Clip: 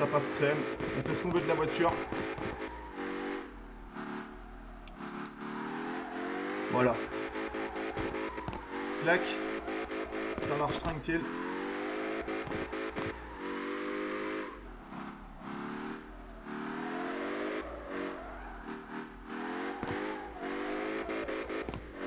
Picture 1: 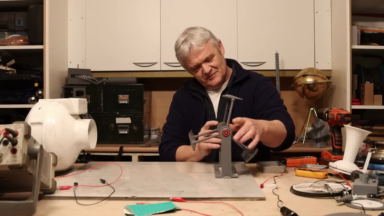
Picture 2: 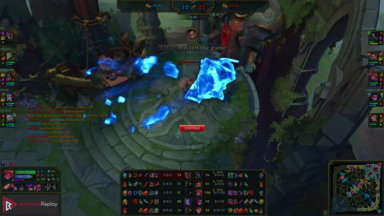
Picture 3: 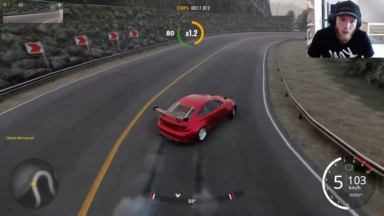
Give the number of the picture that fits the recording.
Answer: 3